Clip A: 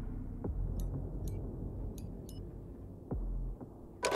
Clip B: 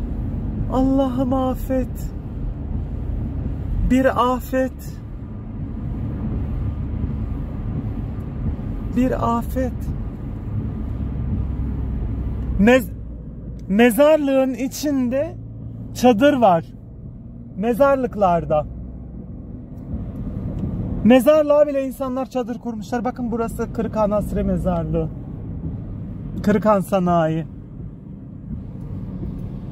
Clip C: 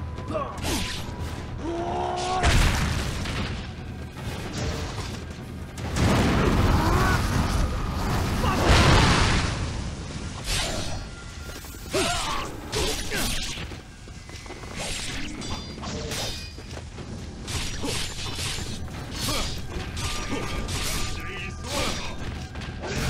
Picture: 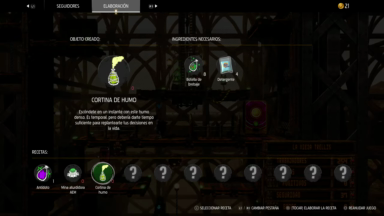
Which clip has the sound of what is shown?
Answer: A